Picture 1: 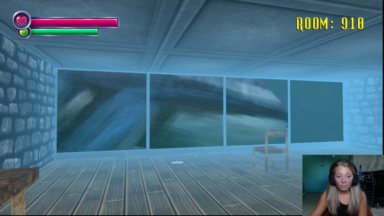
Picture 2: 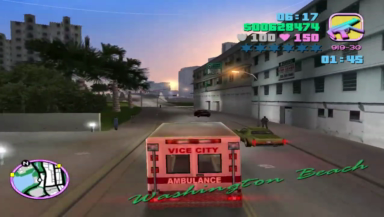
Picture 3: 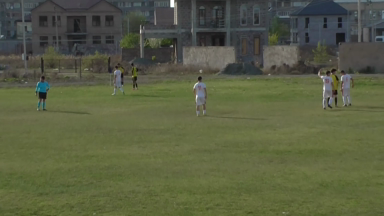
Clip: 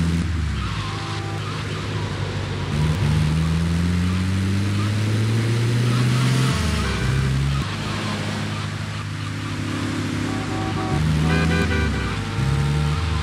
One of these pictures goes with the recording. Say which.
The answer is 2